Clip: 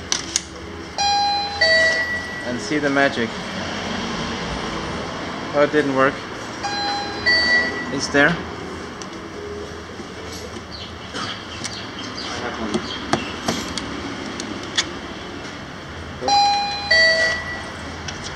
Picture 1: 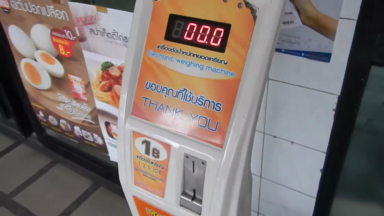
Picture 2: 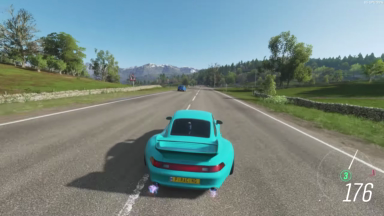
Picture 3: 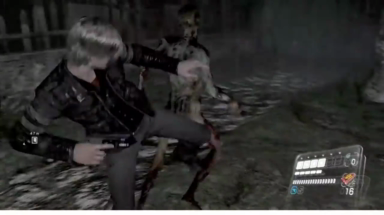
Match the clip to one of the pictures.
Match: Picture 1